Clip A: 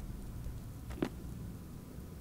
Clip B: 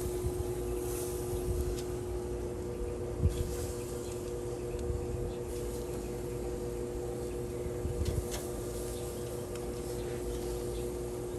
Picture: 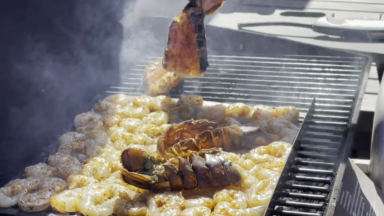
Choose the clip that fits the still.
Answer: B